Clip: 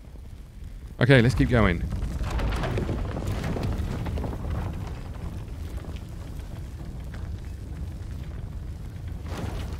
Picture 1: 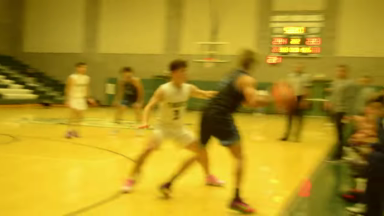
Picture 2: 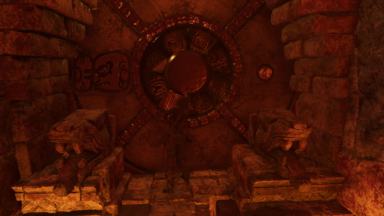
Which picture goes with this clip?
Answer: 2